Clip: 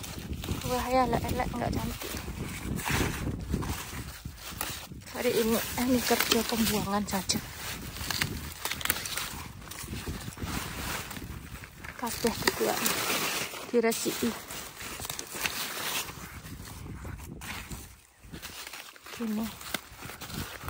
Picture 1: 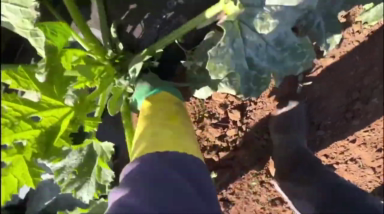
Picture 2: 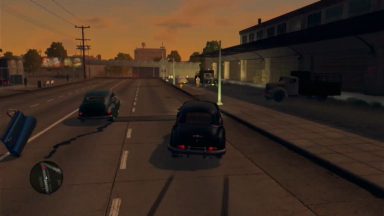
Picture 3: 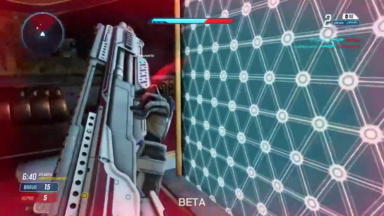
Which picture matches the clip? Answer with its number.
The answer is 1